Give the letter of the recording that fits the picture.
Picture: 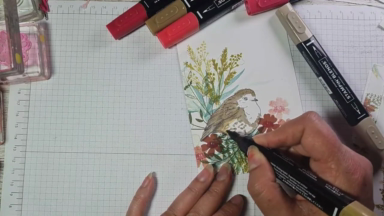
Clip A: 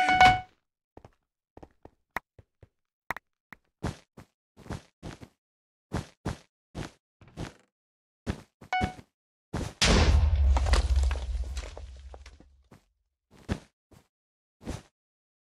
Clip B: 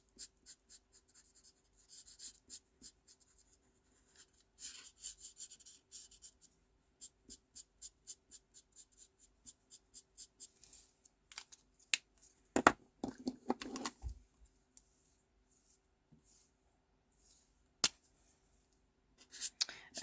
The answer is B